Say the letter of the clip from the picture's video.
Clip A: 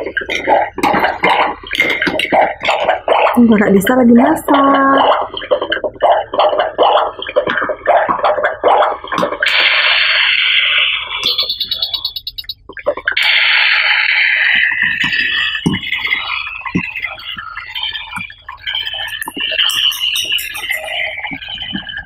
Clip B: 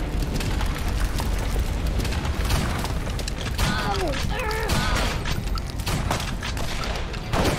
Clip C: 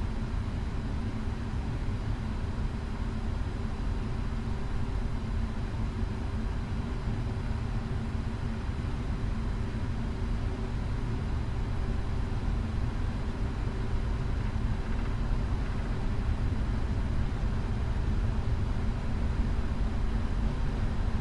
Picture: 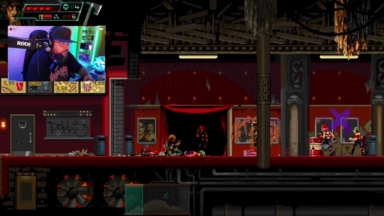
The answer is B